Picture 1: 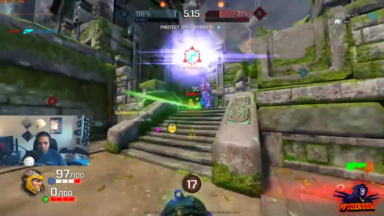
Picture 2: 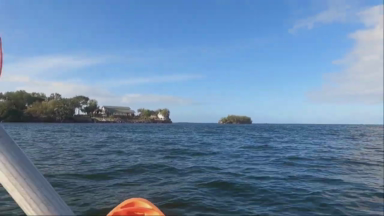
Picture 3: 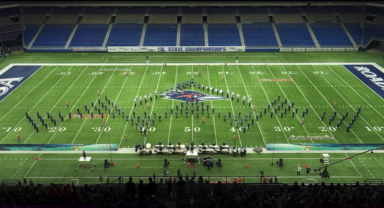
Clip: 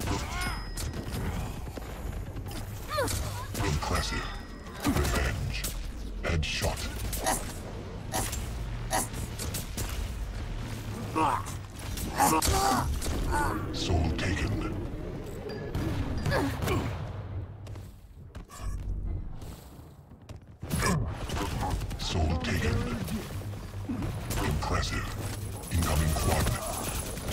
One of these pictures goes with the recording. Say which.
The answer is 1